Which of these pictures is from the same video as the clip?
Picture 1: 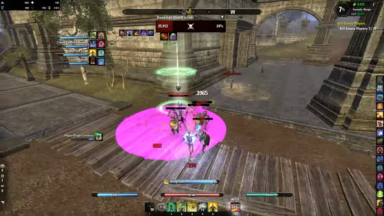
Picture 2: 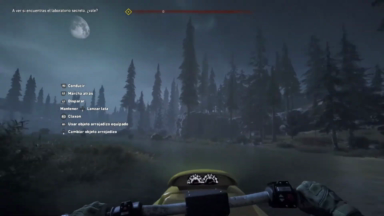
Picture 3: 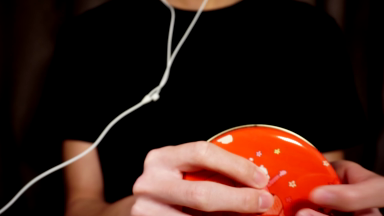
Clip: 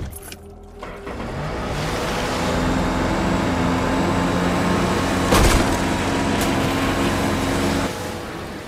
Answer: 2